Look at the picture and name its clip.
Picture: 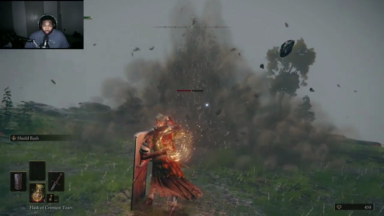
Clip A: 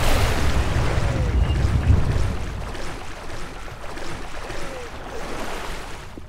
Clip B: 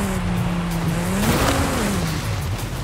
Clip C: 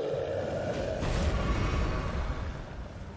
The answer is C